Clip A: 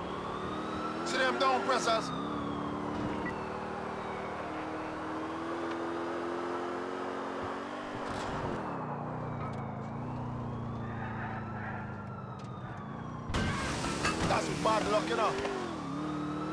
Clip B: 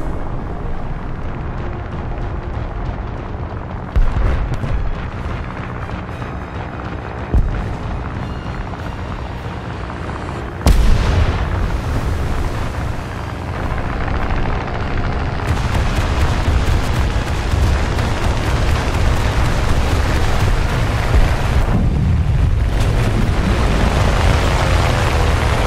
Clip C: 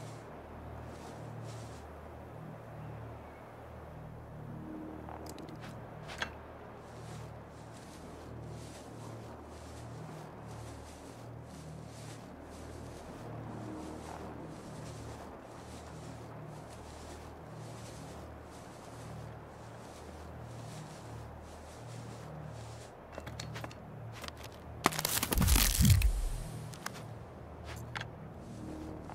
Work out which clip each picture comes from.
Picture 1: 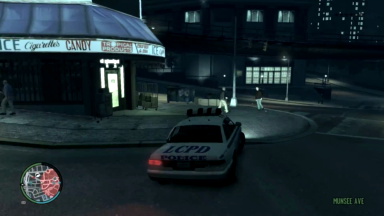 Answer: A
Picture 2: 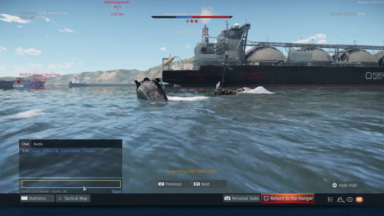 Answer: B